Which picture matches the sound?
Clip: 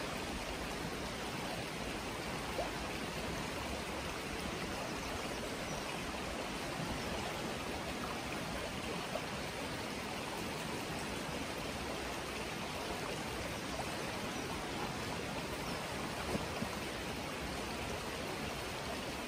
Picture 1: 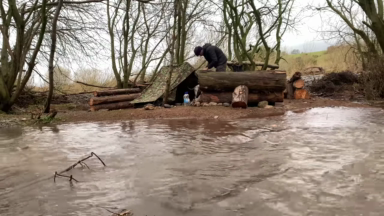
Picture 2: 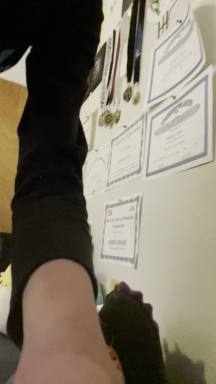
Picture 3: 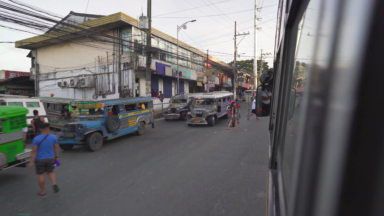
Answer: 1